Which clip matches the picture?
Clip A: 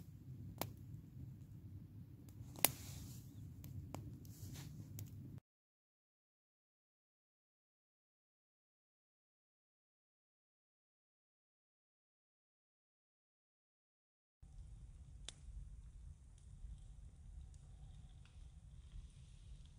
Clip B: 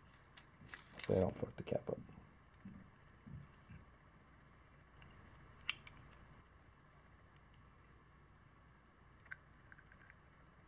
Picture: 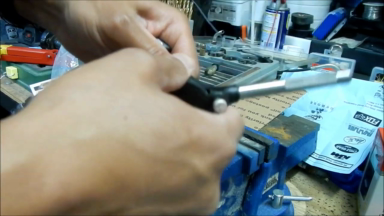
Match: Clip B